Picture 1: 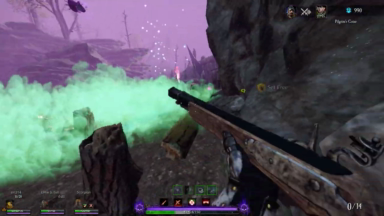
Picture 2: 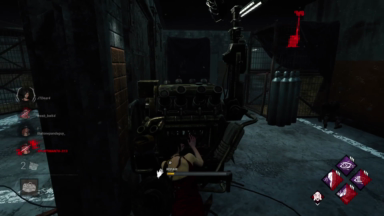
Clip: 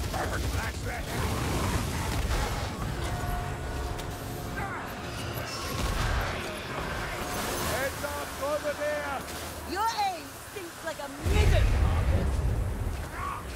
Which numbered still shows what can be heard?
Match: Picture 1